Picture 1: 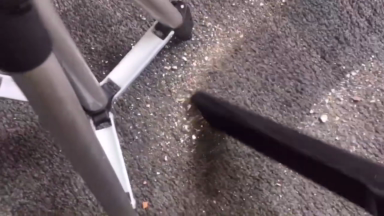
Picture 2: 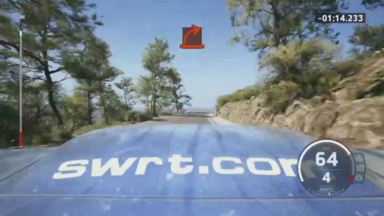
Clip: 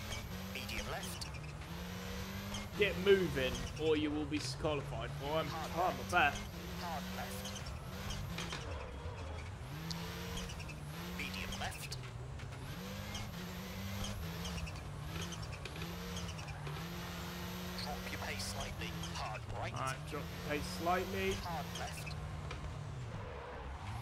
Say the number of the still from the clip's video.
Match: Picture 2